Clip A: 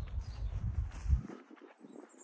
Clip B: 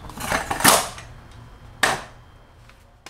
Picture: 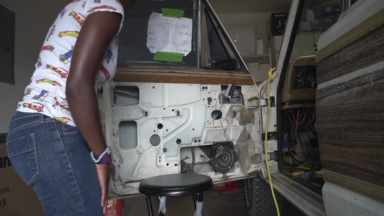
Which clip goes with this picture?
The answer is B